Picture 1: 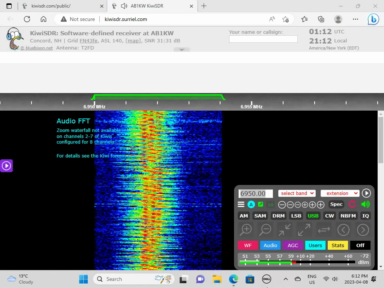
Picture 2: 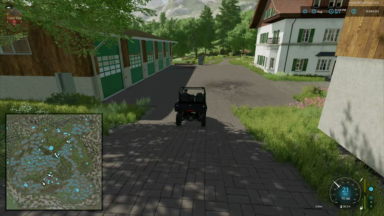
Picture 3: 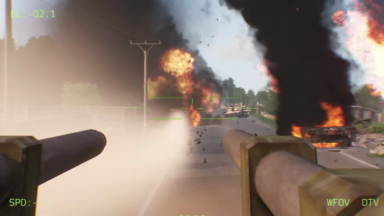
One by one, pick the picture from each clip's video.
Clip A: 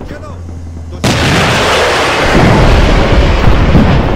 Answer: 3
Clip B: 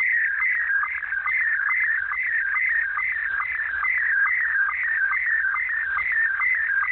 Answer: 1